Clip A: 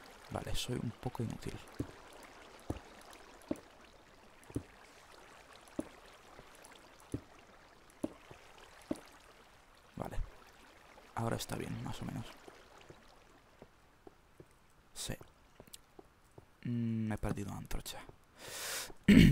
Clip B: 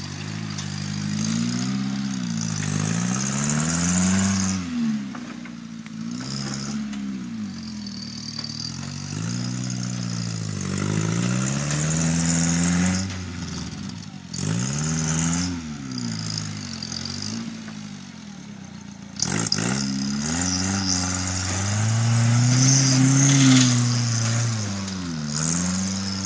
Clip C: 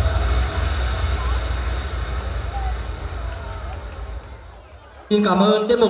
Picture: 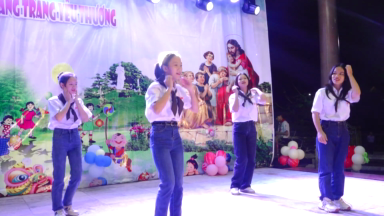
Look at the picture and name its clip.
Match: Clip C